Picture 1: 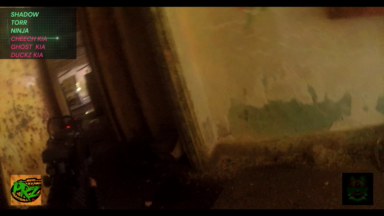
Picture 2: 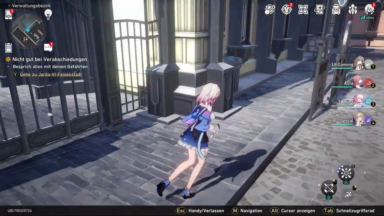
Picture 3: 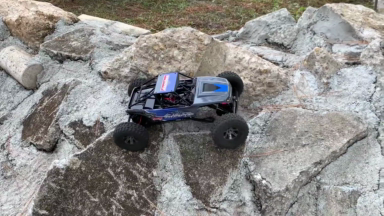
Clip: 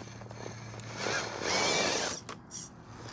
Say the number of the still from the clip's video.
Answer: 3